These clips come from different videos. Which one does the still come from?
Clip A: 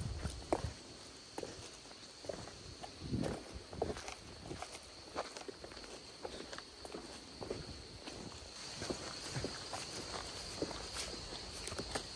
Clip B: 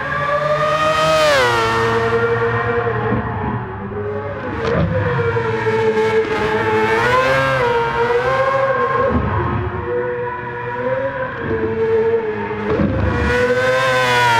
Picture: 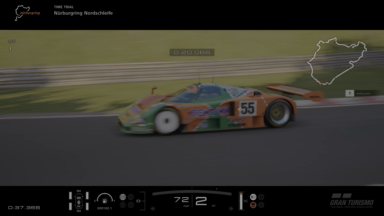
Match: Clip B